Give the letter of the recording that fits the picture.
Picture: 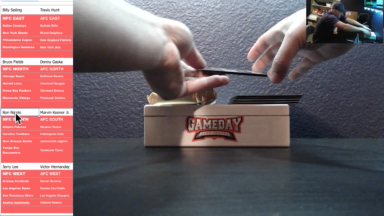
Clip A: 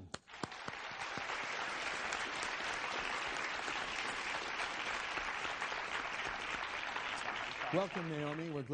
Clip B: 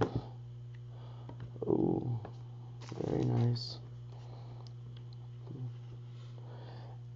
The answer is B